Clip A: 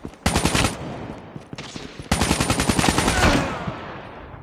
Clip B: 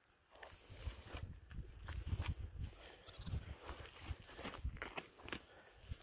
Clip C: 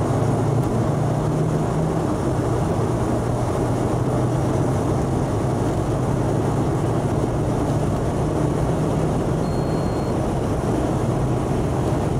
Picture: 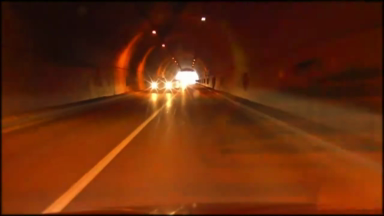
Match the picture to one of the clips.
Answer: C